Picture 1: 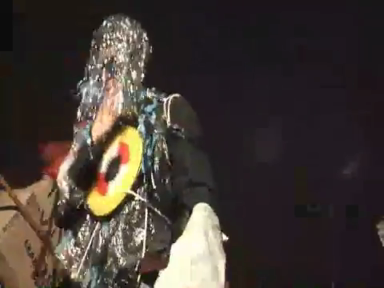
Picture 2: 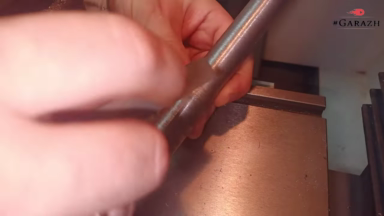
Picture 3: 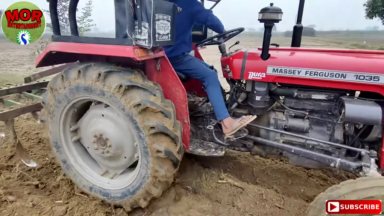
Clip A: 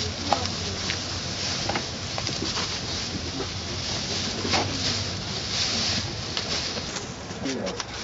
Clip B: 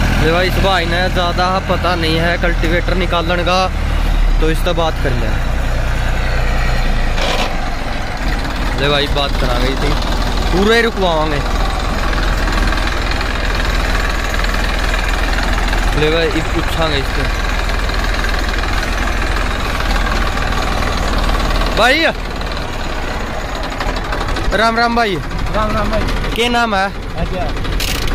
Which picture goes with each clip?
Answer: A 1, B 3